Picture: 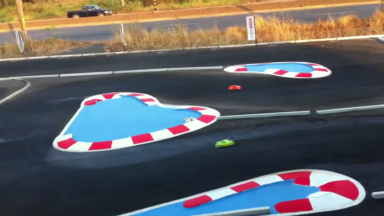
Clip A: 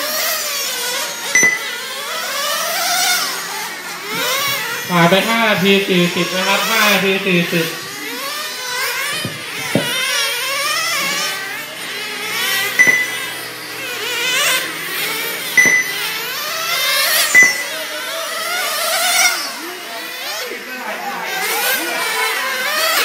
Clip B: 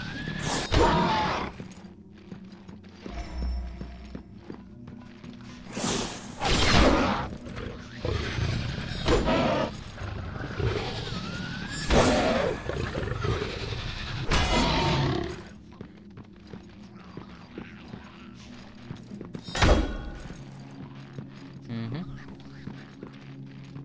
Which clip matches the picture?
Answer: A